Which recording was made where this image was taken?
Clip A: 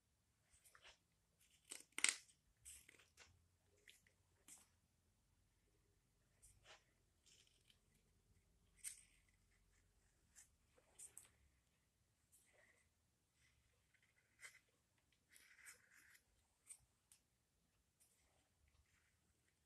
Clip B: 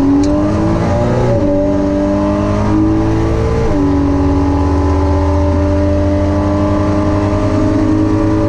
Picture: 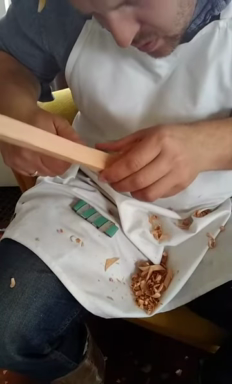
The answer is A